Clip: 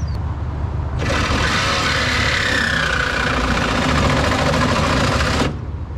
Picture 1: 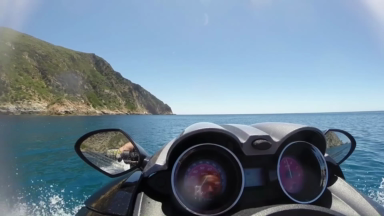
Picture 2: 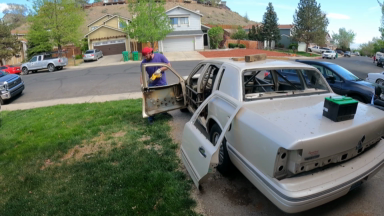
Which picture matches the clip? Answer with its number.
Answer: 2